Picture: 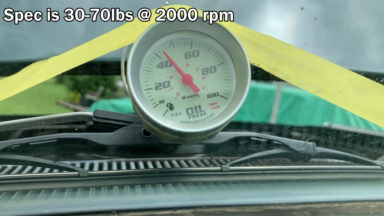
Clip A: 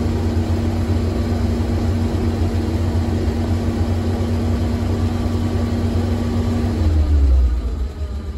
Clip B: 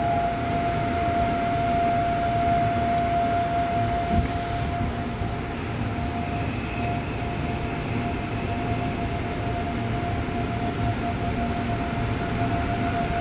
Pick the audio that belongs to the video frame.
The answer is A